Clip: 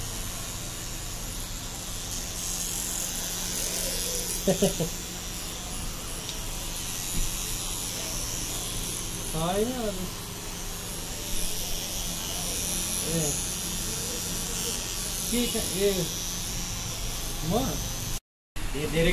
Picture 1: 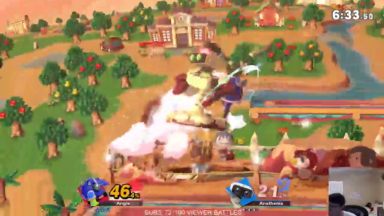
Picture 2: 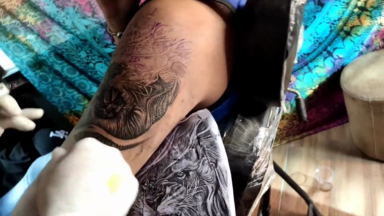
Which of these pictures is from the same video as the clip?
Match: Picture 2